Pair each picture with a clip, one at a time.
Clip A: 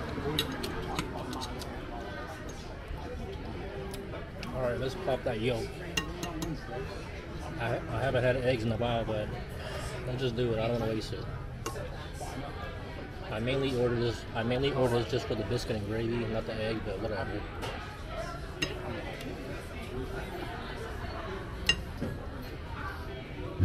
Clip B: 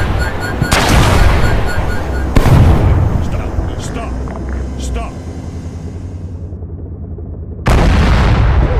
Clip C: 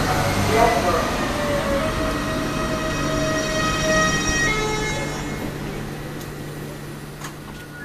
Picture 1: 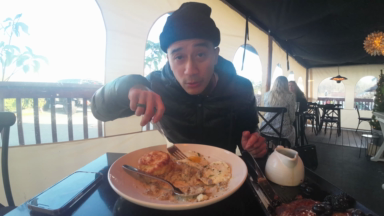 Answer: A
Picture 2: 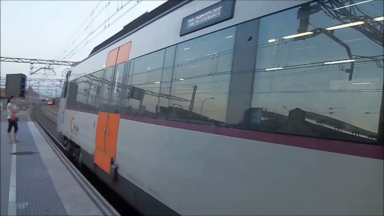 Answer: C